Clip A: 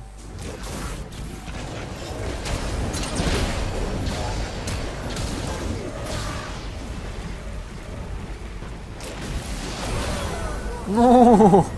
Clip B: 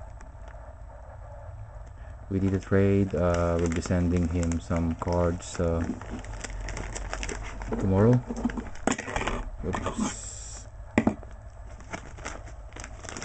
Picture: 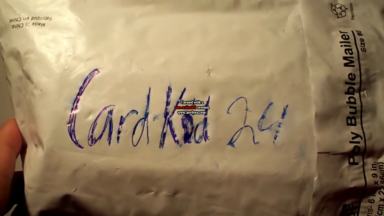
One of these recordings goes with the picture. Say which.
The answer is B